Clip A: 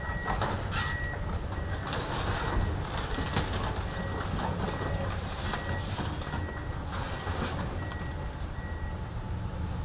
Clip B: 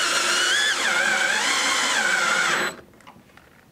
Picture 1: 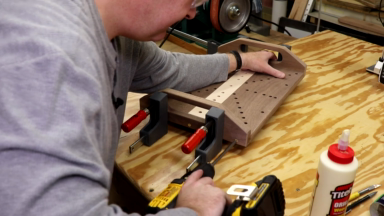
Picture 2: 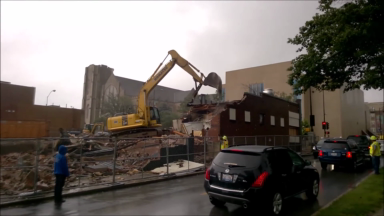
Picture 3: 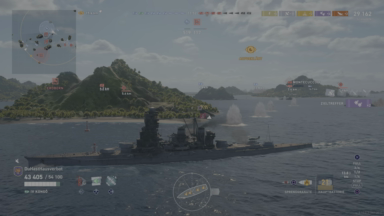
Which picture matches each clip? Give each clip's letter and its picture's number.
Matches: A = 2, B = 1